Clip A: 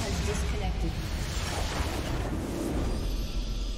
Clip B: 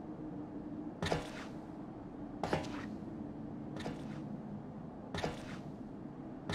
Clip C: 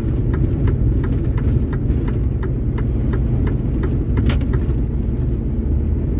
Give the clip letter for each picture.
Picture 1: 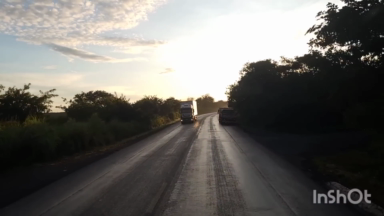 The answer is C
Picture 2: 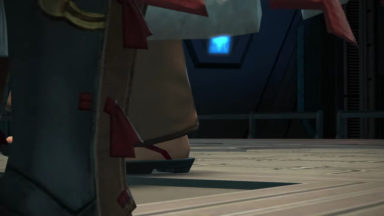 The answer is B